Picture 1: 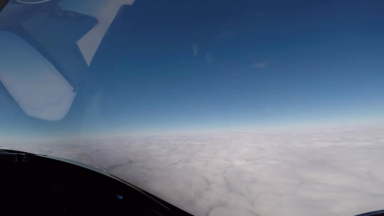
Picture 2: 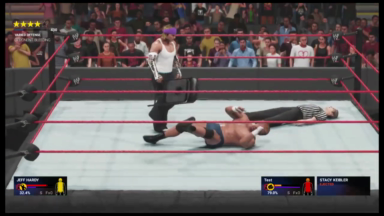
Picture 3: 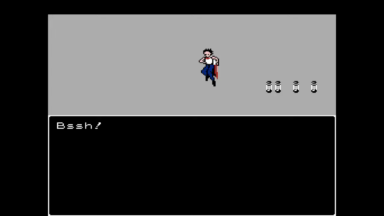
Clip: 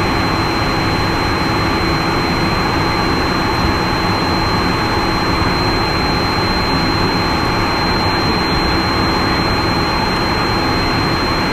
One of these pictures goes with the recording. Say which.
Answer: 1